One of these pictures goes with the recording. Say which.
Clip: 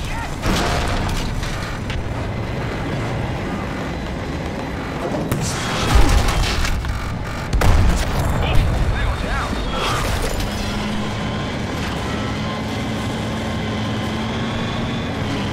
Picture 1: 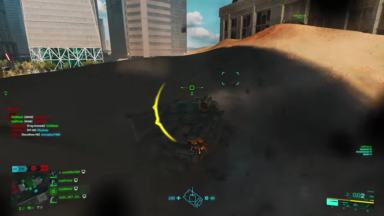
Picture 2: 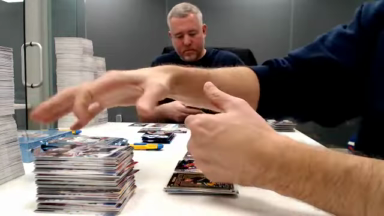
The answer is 1